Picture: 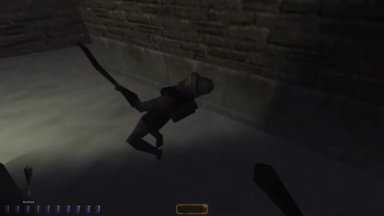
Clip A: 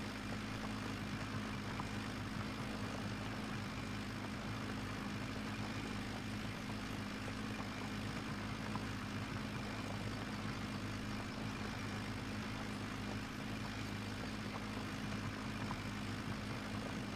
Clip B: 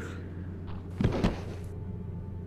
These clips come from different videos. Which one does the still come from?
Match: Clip B